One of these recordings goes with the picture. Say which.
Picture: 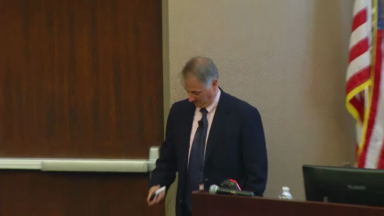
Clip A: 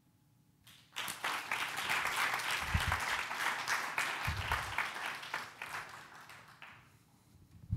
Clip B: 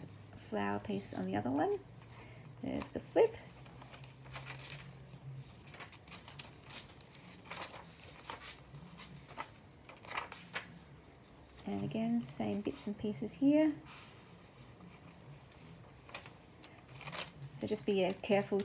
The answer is A